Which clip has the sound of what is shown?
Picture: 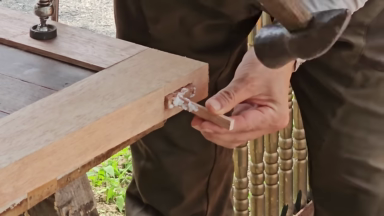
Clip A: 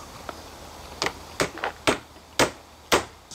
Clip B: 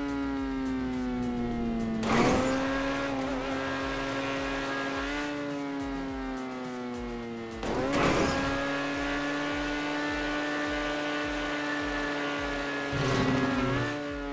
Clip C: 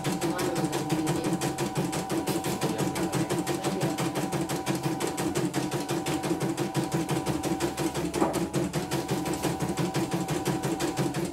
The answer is A